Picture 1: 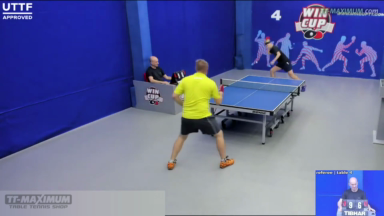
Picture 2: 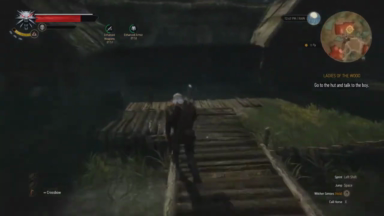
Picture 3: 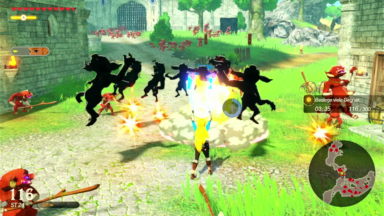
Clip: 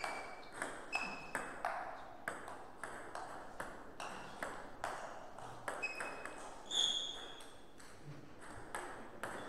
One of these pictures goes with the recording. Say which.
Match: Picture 1